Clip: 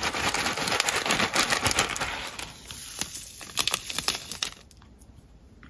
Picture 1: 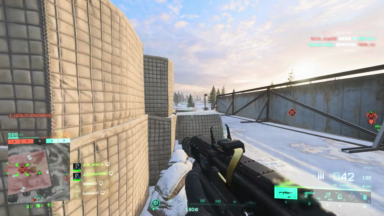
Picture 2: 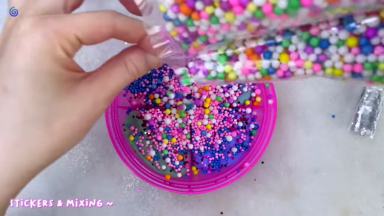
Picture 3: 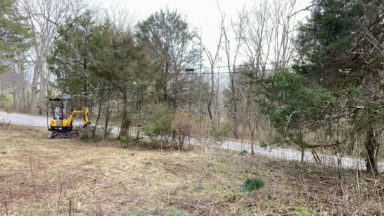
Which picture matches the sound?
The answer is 2